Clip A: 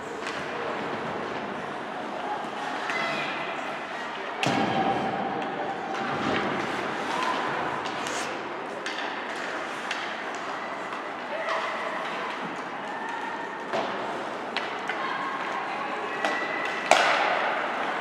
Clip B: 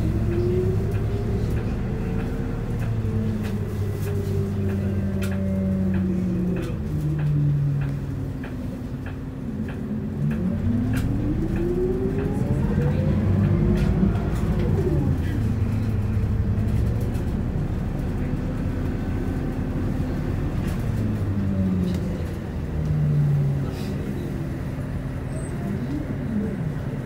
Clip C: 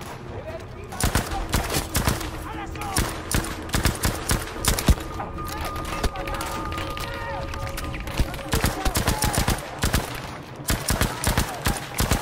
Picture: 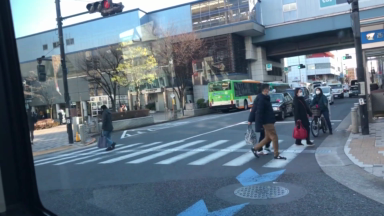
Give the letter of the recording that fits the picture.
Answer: B